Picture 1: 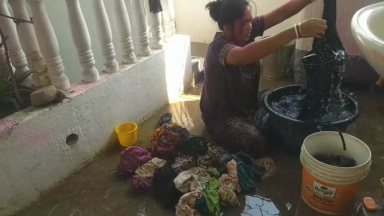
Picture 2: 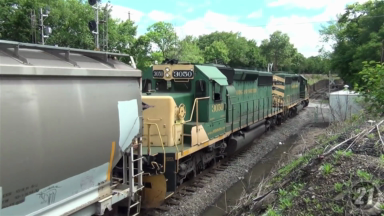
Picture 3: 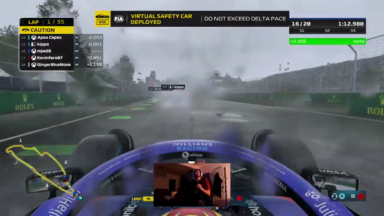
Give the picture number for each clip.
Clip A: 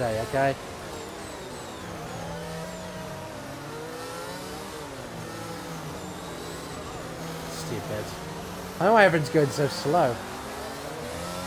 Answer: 3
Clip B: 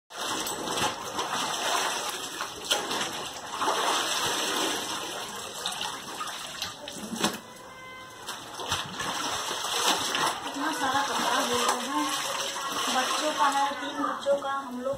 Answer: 1